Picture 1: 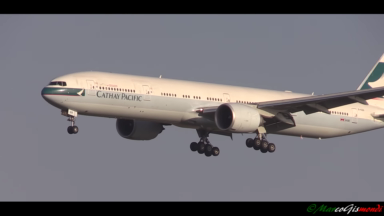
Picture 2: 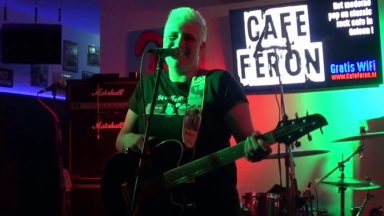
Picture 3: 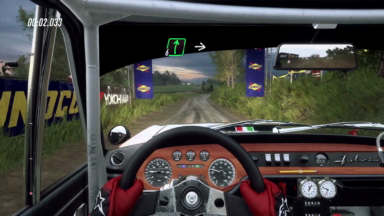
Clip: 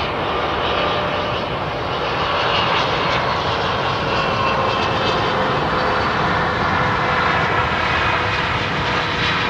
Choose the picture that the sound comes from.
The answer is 1